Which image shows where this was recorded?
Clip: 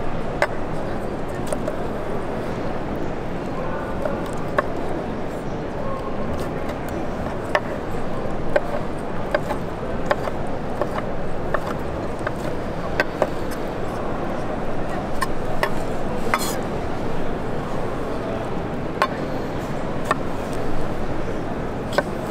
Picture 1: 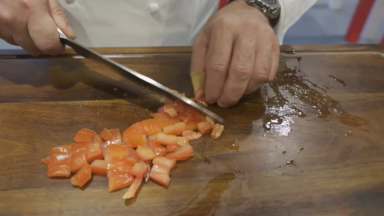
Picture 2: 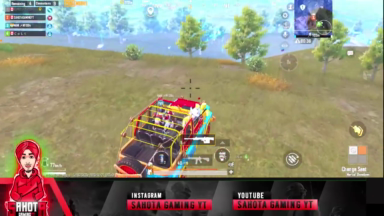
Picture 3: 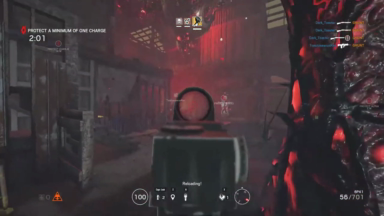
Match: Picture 1